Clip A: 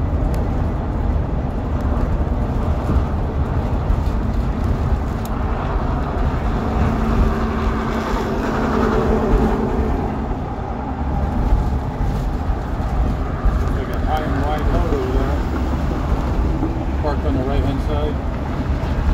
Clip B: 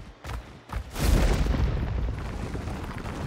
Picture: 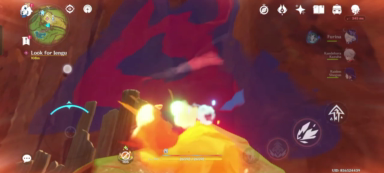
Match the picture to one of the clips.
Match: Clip B